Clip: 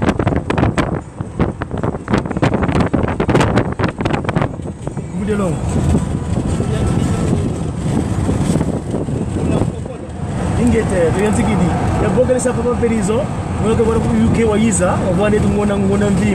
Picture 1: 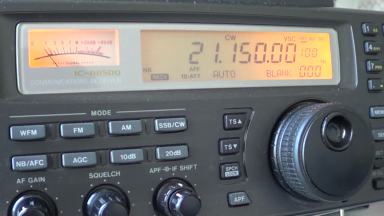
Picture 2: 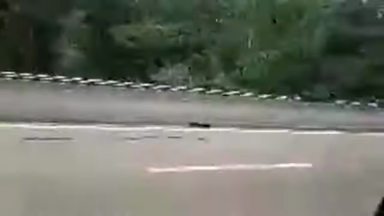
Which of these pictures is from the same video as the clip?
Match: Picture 2